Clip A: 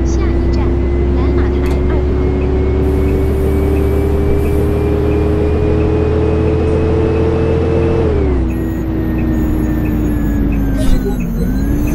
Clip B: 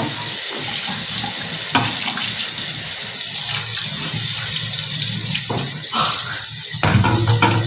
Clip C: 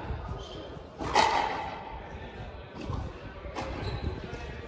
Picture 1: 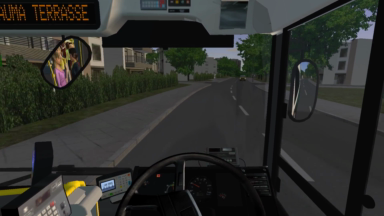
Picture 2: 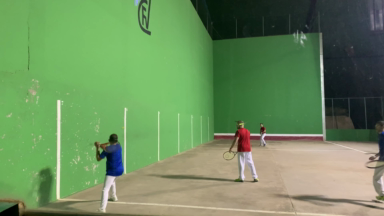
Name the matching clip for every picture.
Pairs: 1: A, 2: C